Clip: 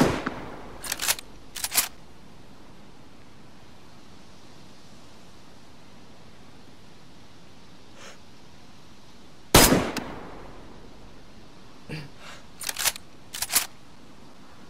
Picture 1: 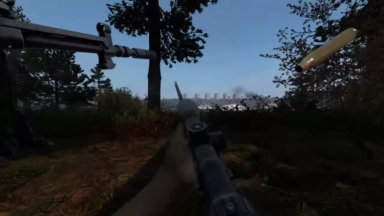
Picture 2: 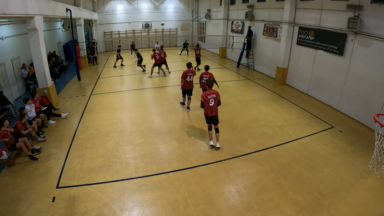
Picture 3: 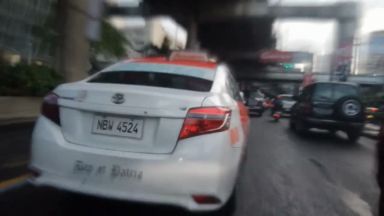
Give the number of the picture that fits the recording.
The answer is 1